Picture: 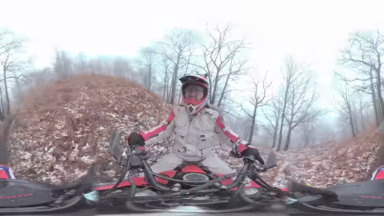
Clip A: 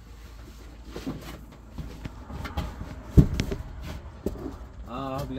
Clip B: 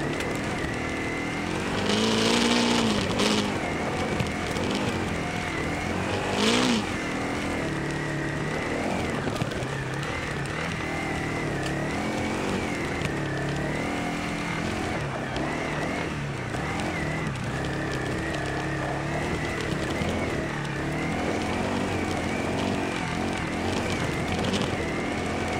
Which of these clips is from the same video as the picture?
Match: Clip B